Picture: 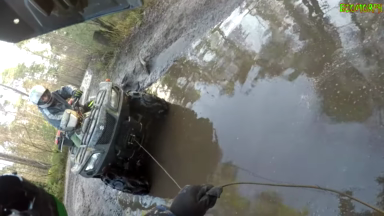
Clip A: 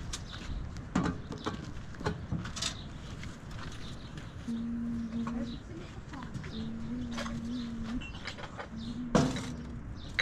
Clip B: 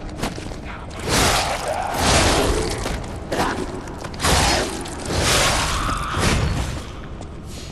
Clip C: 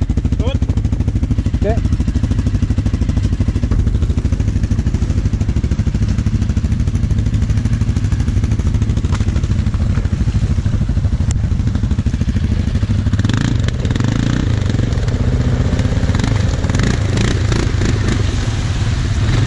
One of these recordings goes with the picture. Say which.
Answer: C